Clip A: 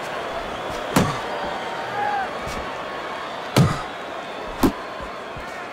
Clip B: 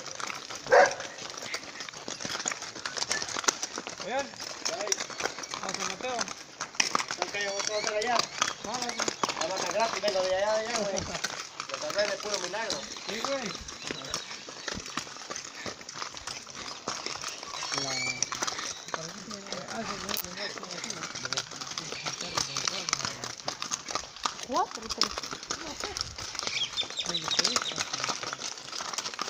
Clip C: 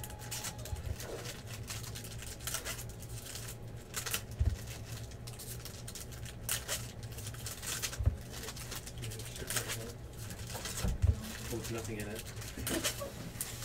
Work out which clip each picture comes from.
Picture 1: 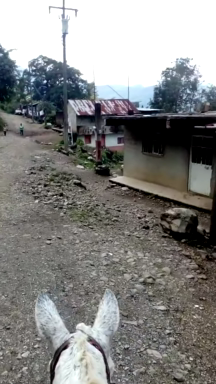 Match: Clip B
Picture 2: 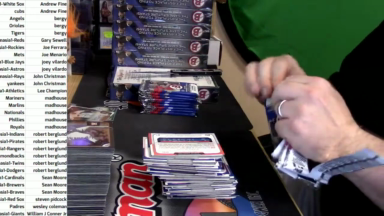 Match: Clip C